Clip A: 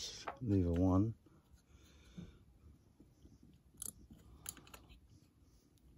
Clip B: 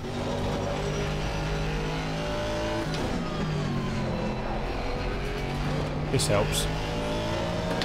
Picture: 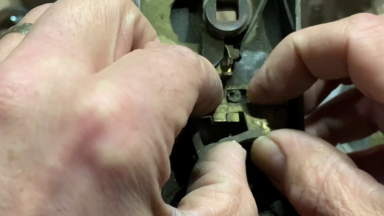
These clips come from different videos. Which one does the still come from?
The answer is A